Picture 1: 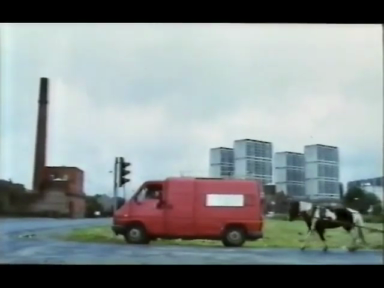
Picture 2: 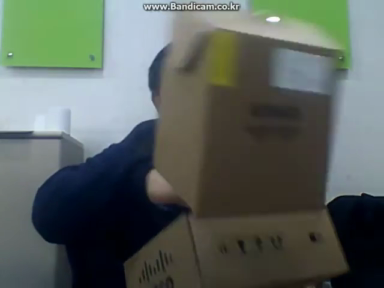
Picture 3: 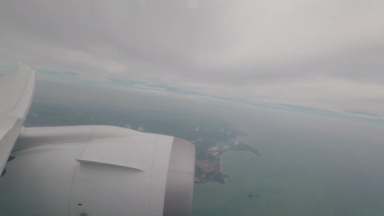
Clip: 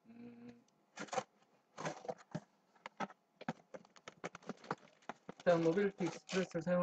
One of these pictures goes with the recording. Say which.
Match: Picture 2